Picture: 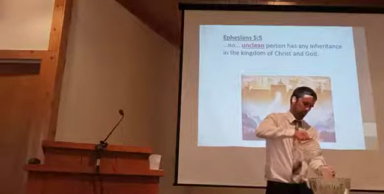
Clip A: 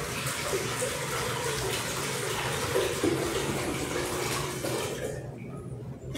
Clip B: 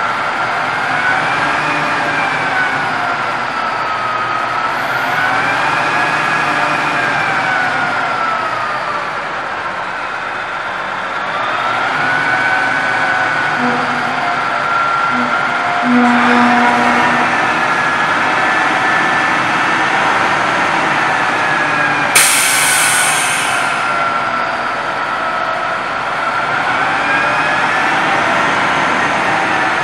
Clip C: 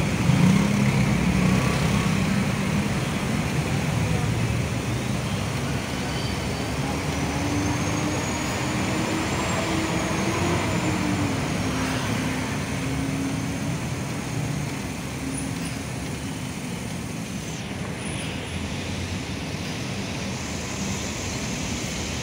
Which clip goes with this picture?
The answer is A